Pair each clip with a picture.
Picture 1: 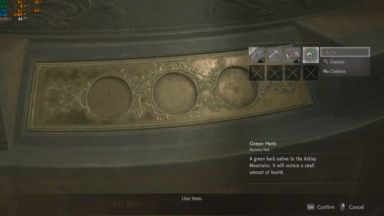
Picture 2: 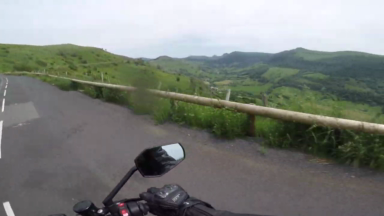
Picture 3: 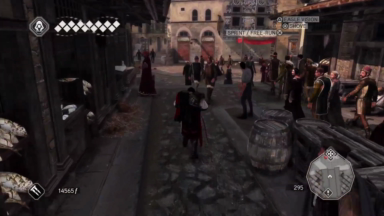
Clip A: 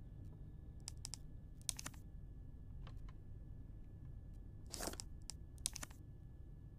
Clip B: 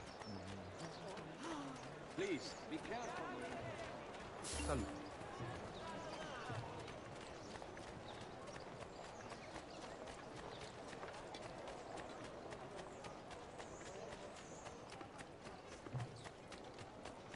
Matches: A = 1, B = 3